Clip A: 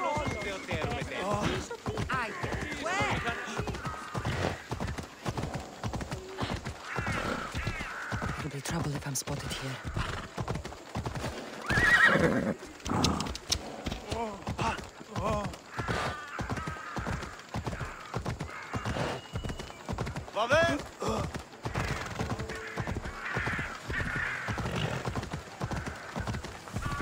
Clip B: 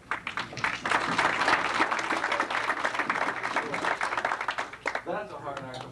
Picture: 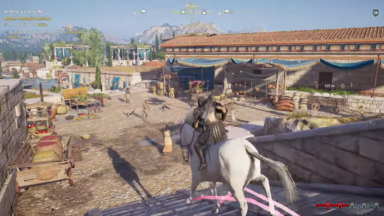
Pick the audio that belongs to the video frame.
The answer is A